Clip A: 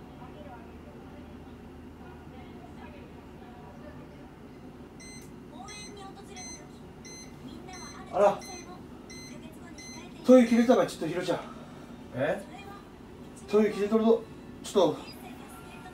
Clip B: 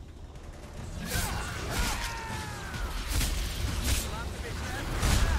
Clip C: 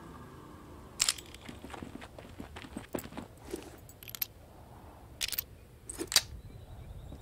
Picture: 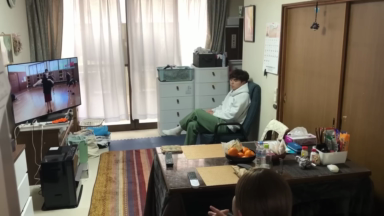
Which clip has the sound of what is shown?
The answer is A